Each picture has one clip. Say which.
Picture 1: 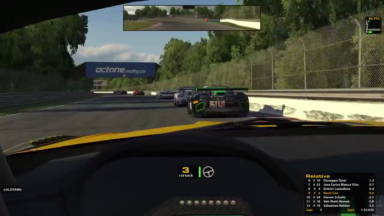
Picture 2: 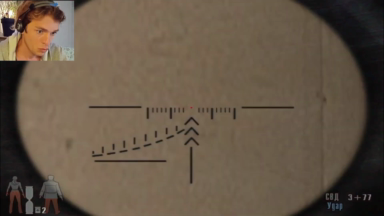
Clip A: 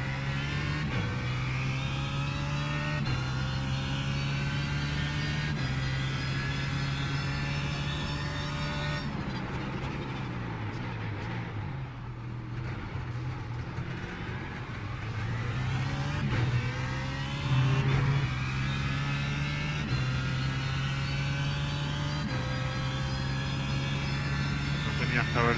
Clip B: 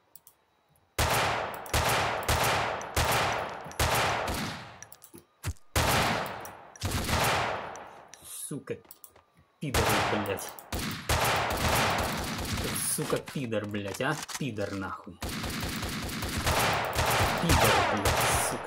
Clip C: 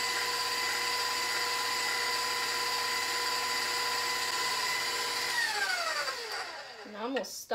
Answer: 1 A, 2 B